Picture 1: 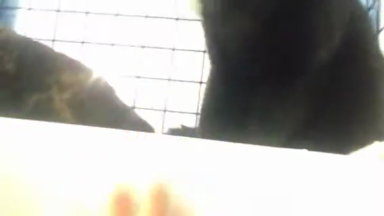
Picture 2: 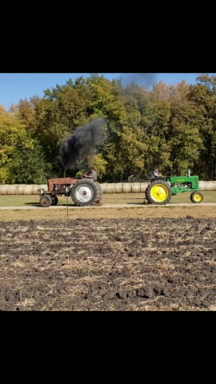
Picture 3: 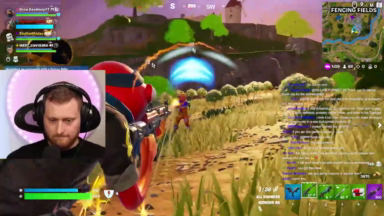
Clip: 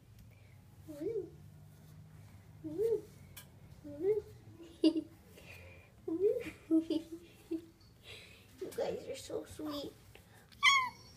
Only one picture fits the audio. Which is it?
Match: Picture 1